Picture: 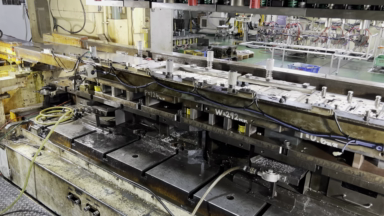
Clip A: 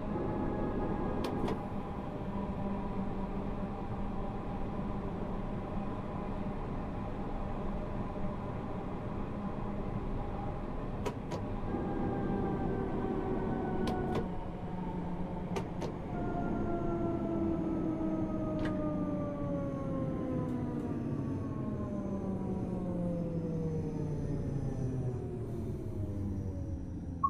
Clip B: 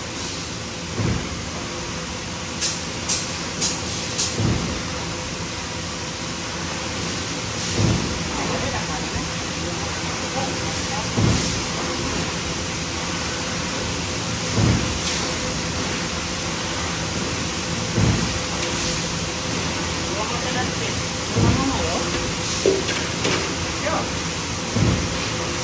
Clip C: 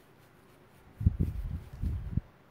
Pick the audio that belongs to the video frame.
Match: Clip B